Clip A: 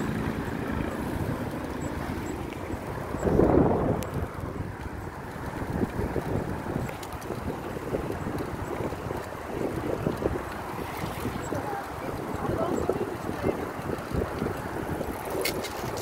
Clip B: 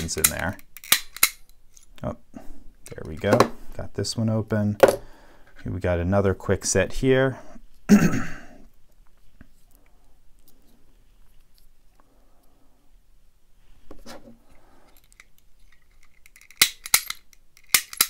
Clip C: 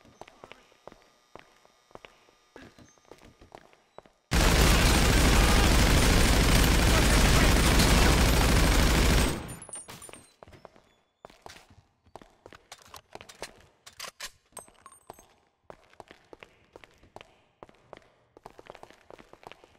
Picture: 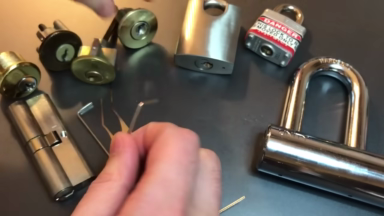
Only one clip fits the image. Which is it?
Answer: B